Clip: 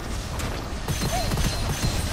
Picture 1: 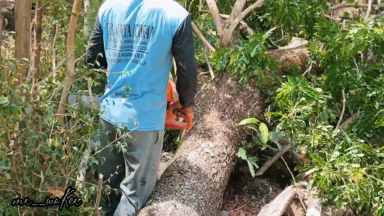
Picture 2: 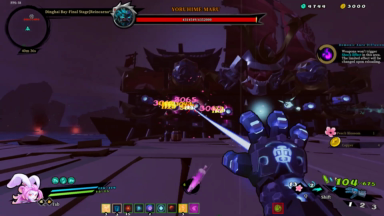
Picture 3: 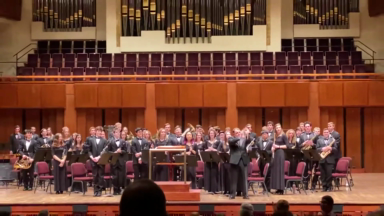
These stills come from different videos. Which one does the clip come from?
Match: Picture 2